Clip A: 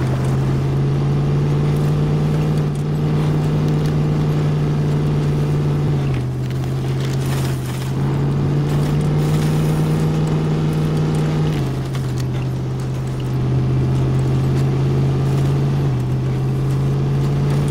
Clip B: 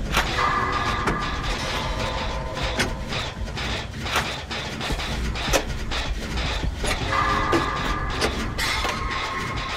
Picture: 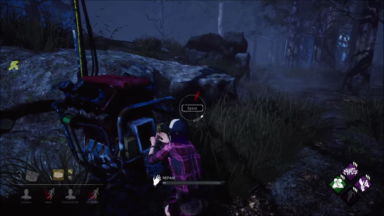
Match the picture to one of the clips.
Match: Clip B